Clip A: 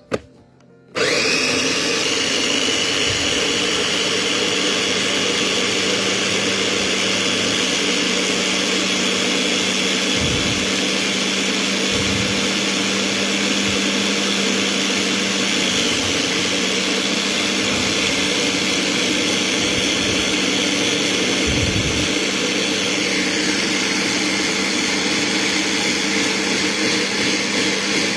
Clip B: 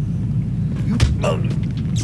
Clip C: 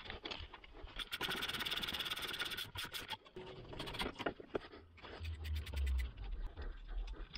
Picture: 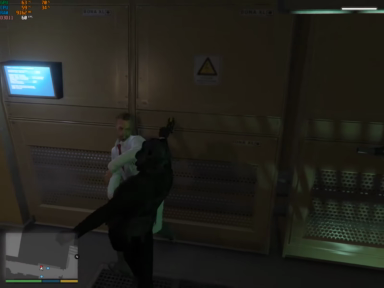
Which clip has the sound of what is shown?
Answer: B